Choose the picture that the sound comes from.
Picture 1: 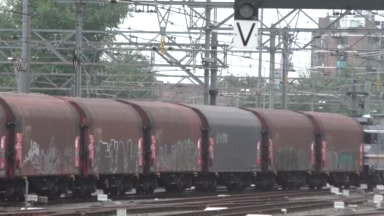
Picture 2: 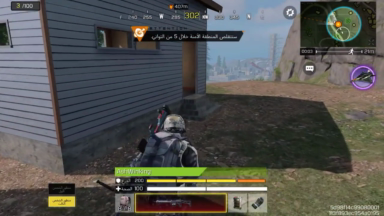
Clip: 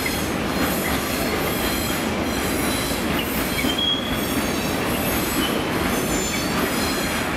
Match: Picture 1